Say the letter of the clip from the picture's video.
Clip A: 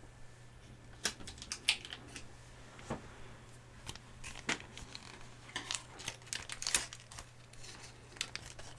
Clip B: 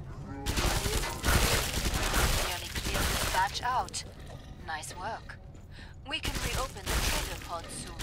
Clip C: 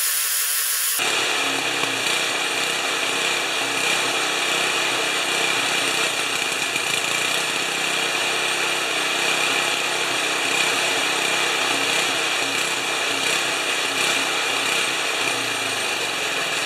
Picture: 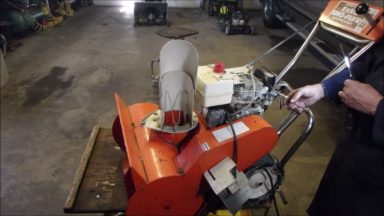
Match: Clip C